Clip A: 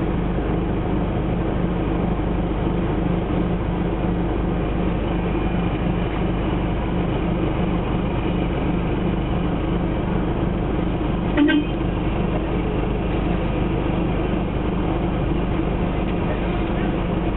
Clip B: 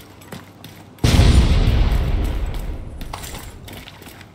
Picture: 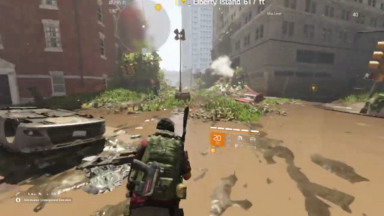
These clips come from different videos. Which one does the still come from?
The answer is B